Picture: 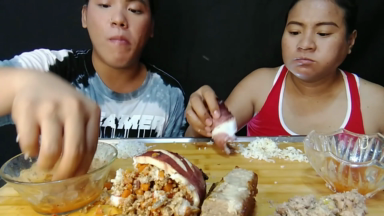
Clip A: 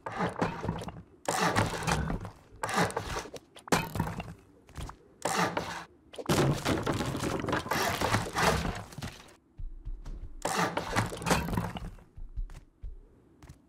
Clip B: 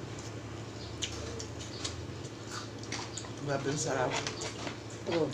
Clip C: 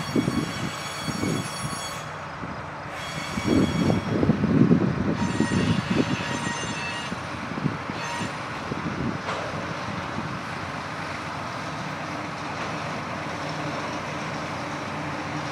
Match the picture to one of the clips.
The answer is B